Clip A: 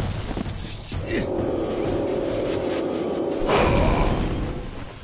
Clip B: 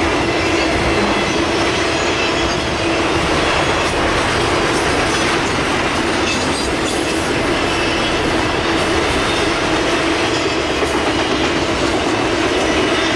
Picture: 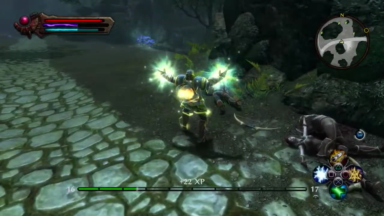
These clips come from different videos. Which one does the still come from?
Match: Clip A